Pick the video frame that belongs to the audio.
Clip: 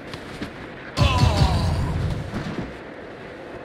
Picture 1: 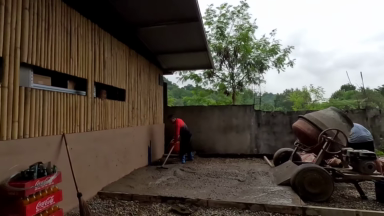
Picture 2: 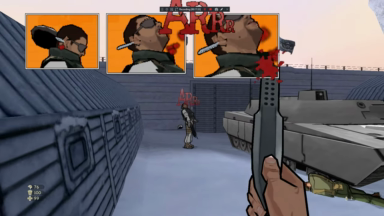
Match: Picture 2